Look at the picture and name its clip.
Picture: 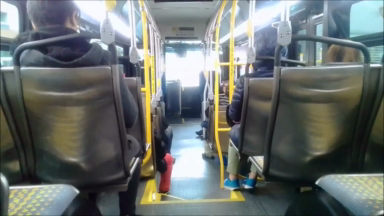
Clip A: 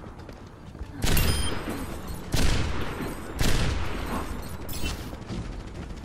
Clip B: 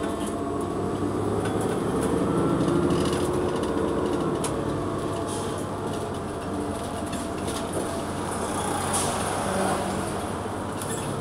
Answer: B